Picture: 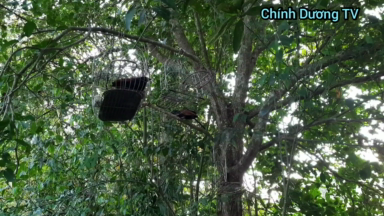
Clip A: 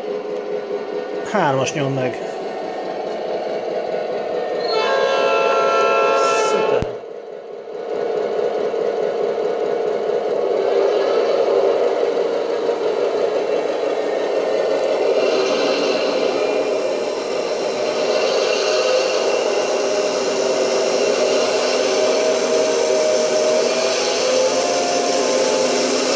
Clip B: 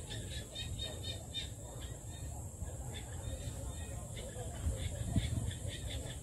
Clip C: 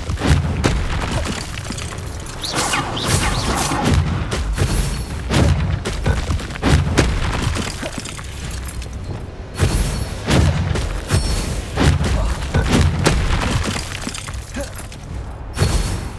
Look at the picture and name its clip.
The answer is B